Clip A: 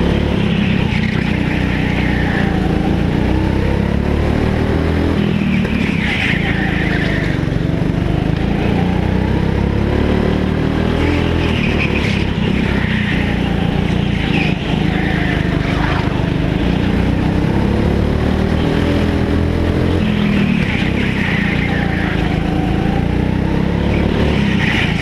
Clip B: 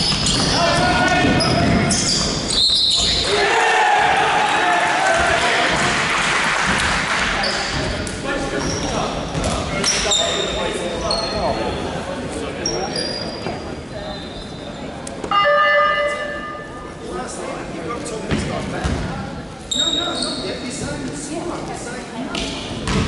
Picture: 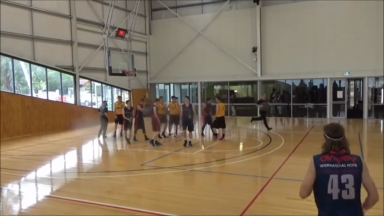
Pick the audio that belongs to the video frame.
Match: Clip B